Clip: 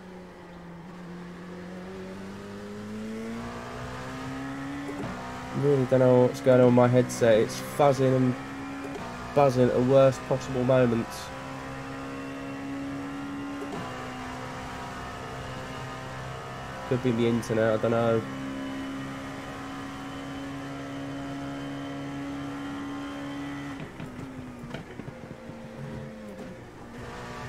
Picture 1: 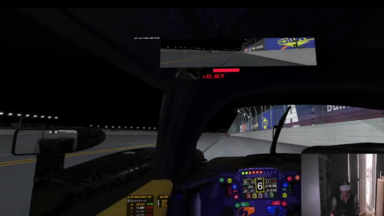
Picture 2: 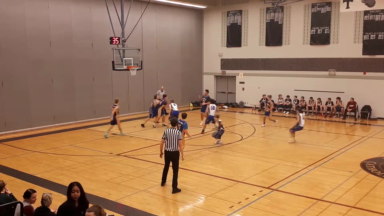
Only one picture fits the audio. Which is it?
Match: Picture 1